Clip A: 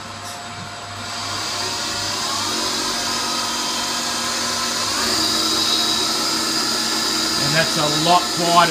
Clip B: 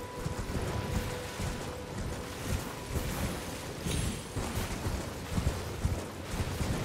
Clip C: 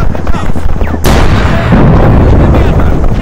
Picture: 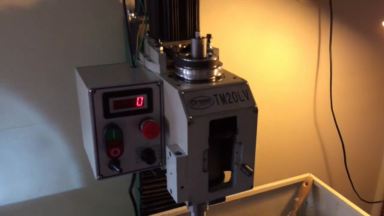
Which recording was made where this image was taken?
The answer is A